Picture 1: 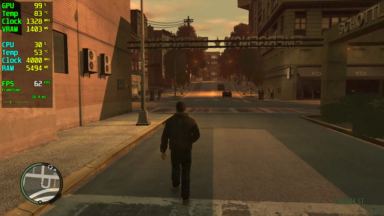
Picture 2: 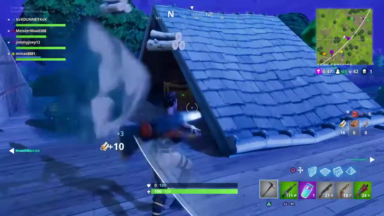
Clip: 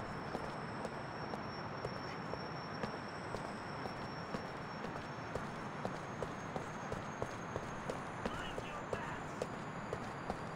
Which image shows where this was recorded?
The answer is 1